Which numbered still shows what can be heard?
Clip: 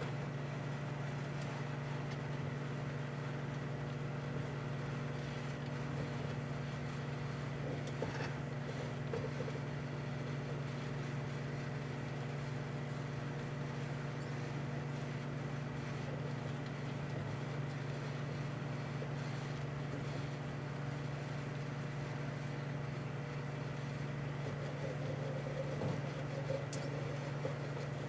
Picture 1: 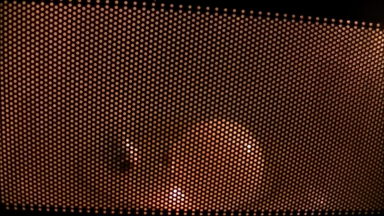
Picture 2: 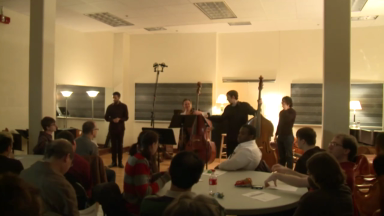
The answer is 1